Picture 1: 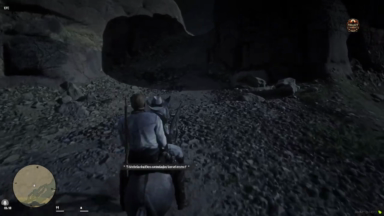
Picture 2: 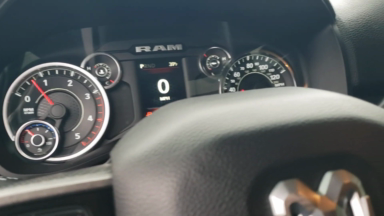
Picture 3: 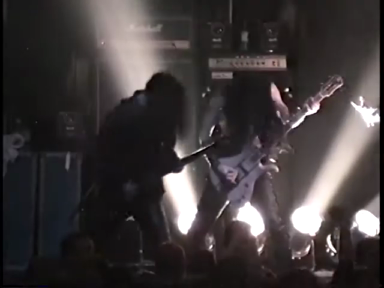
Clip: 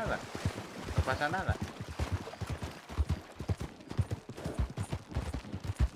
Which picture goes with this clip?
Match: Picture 1